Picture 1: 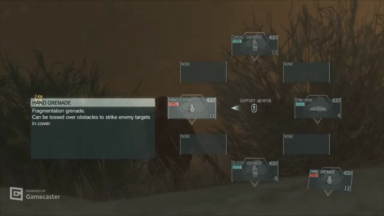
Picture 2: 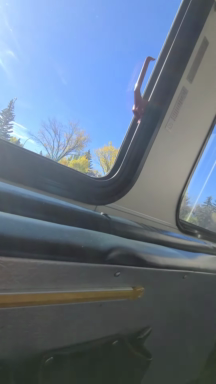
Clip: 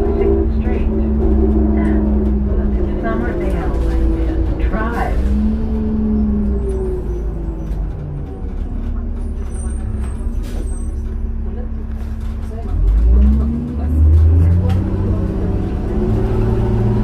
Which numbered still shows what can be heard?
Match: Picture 2